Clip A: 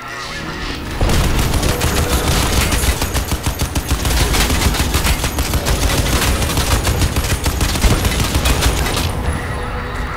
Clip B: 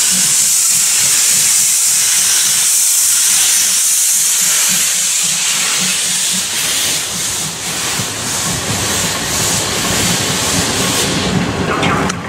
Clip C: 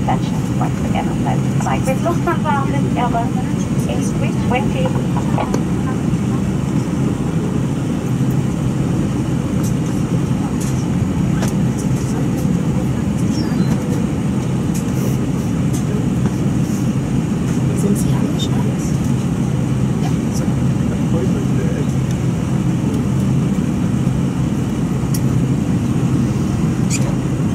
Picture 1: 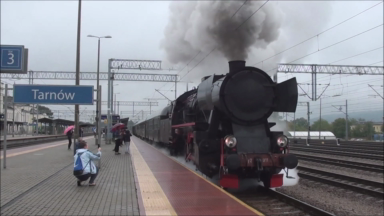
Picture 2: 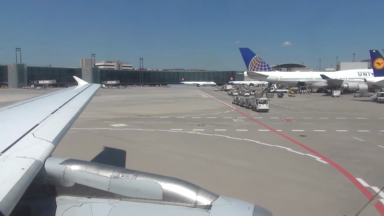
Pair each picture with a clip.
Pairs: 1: B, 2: C